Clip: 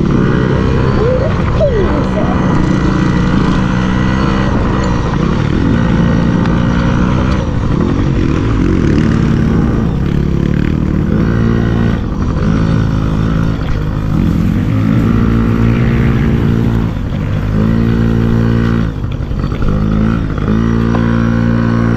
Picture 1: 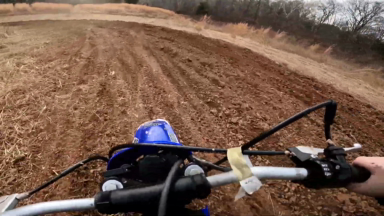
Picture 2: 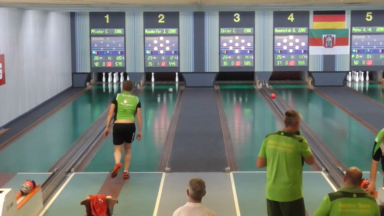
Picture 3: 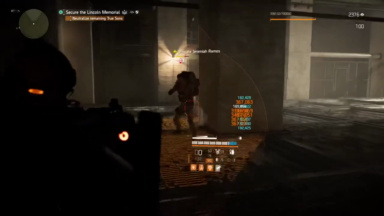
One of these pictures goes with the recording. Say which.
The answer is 1